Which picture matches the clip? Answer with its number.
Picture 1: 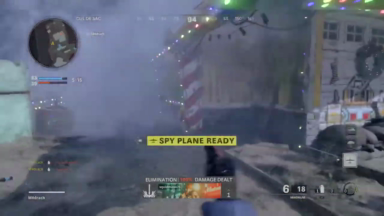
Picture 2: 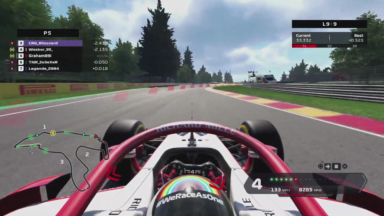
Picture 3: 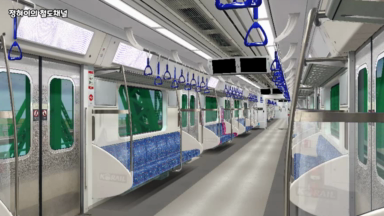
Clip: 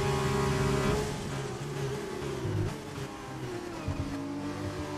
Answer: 2